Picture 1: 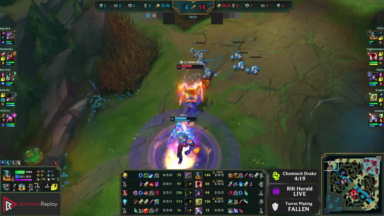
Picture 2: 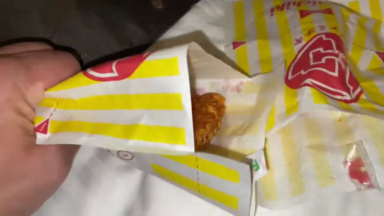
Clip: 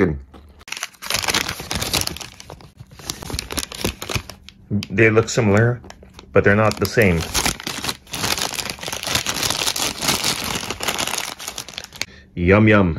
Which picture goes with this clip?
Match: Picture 2